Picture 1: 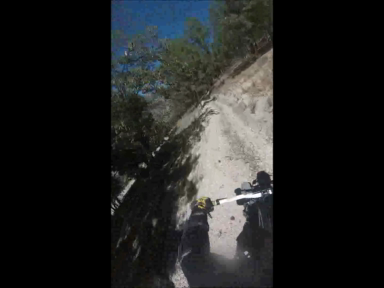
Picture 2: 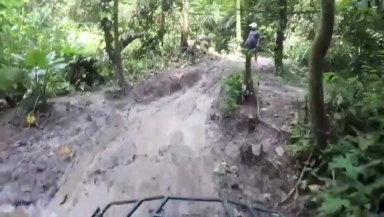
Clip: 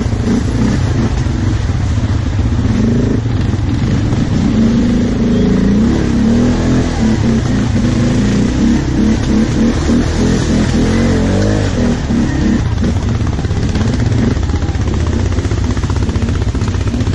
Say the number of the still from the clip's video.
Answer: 2